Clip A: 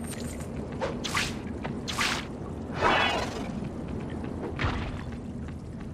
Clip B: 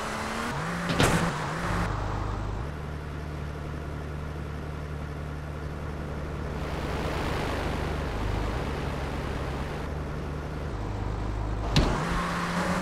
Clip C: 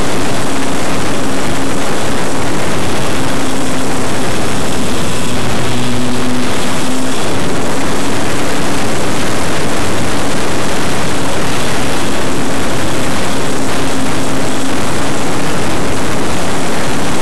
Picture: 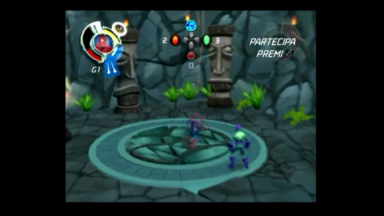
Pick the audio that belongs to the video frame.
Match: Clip A